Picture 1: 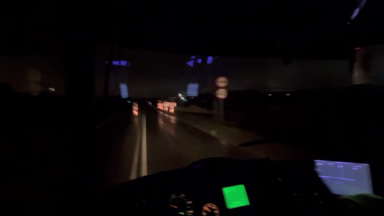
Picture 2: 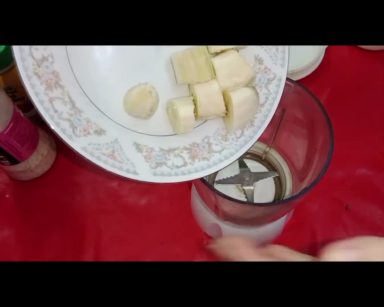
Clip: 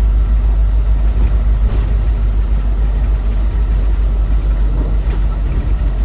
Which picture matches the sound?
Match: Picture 1